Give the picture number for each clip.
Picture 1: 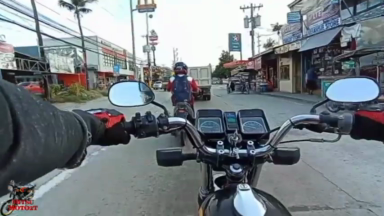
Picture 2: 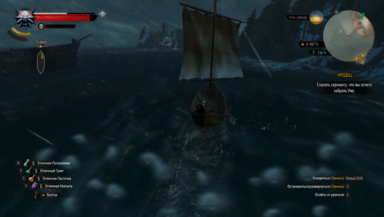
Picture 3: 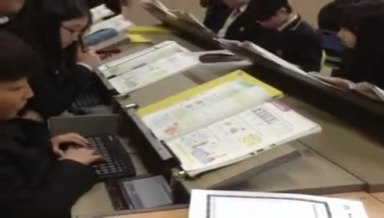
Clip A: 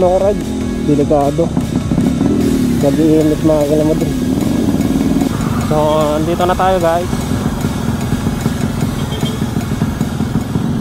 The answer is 1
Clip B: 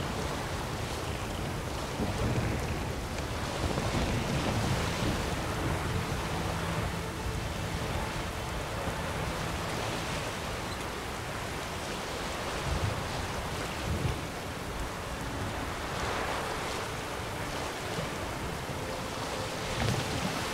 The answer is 2